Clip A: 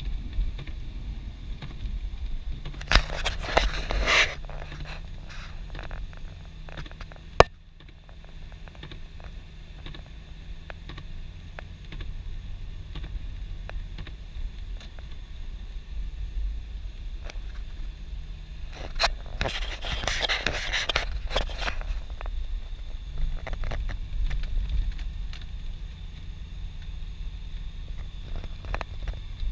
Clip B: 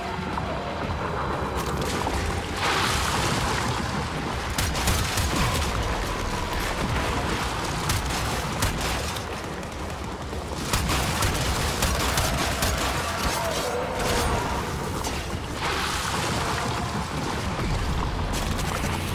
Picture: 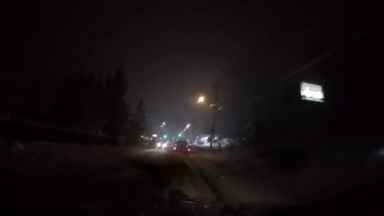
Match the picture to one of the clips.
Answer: A